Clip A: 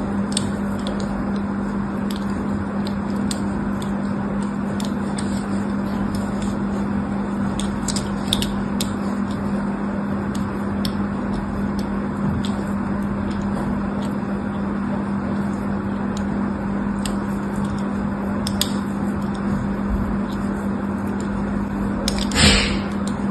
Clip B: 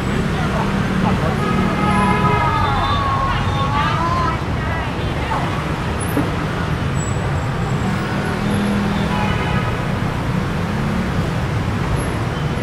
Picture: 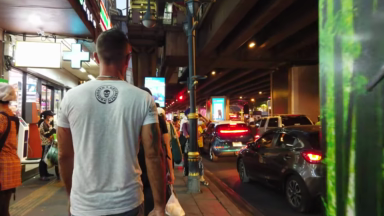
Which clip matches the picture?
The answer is B